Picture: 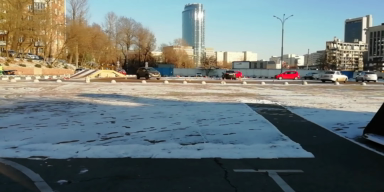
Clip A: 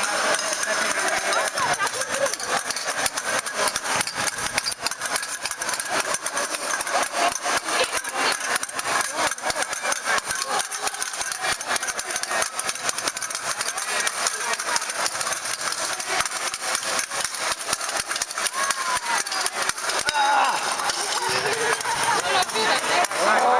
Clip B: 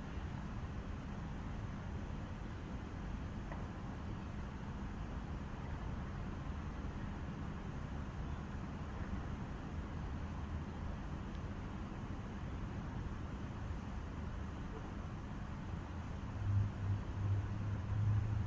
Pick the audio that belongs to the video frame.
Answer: B